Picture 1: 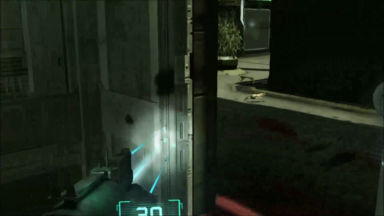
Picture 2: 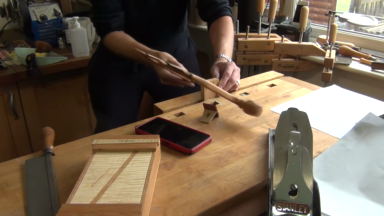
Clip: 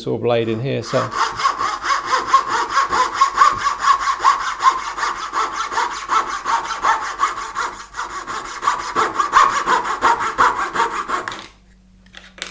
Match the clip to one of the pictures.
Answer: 2